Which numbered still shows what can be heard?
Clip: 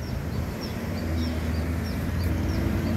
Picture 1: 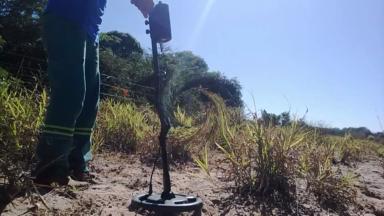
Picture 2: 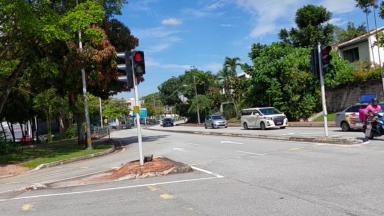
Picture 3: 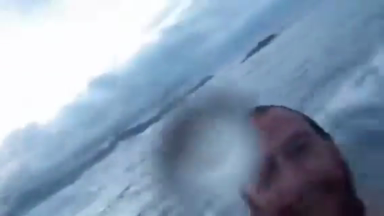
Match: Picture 2